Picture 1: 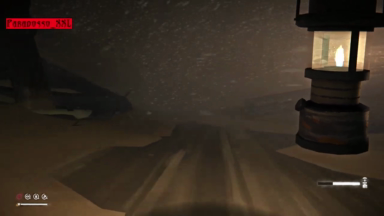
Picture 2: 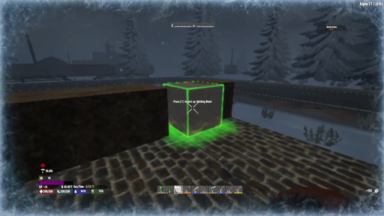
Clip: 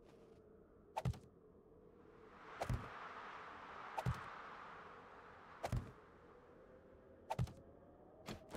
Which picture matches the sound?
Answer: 2